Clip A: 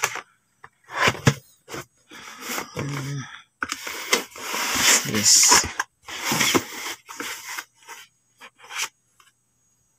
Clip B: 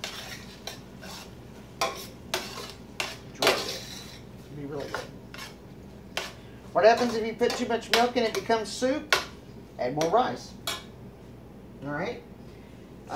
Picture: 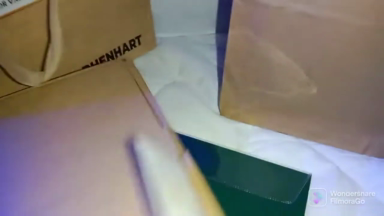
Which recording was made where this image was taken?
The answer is A